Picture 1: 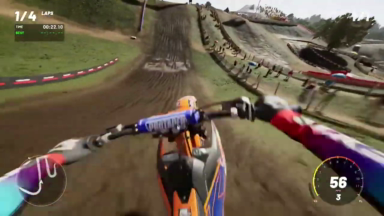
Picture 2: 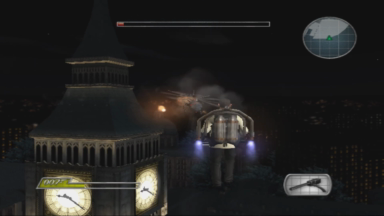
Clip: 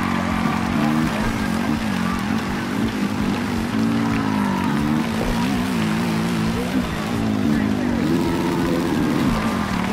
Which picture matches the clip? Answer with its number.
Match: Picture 1